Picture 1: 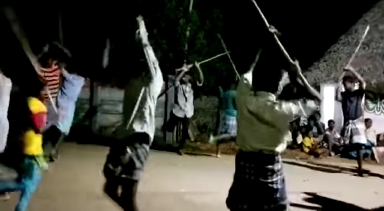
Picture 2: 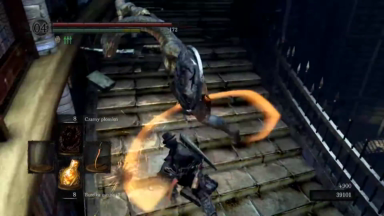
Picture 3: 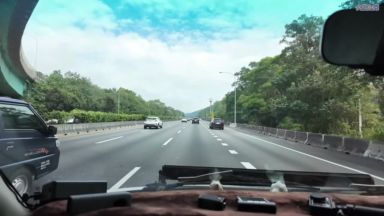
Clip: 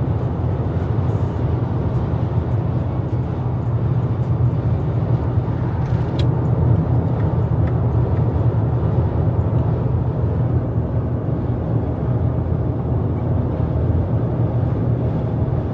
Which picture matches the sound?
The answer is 3